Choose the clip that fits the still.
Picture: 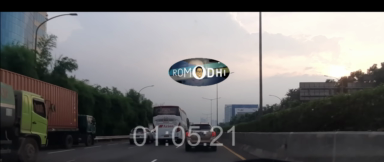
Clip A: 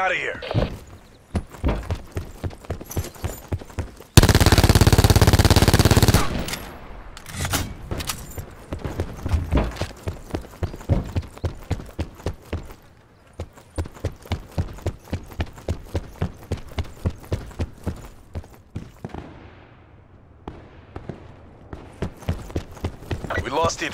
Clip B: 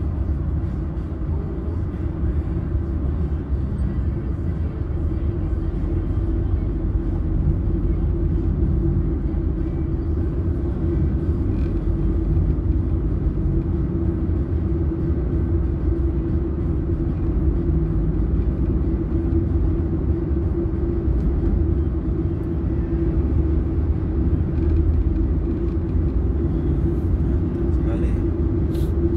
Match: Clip B